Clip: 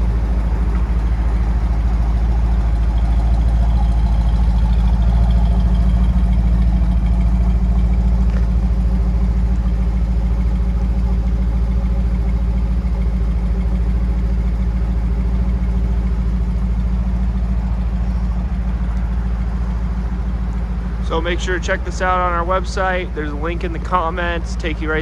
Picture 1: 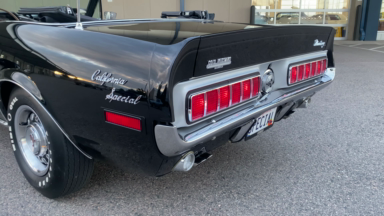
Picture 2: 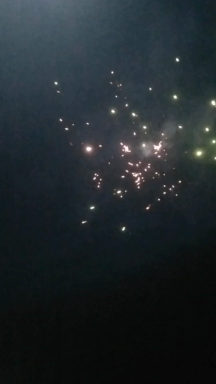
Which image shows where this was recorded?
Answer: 1